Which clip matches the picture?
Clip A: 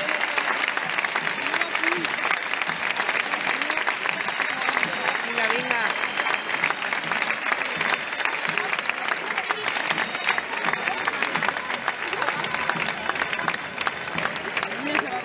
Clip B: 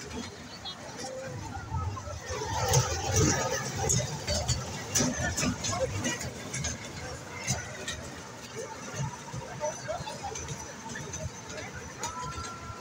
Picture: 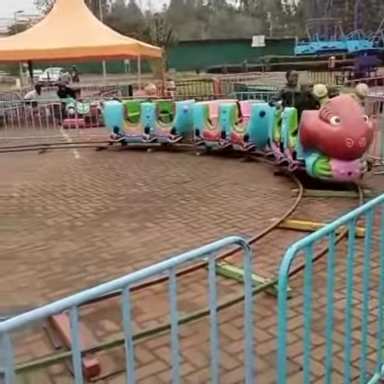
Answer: B